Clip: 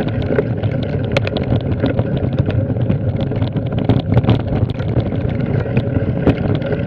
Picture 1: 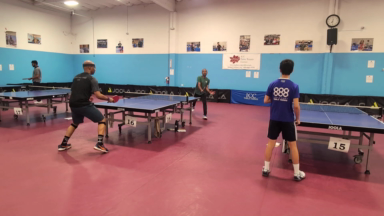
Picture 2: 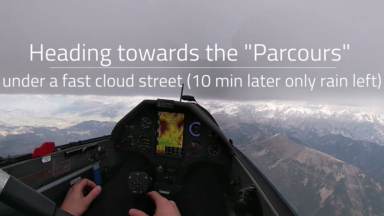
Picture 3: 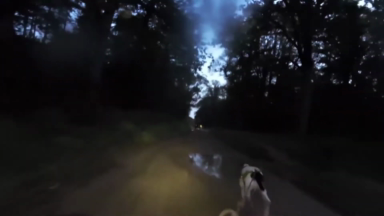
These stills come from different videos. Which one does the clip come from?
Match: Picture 3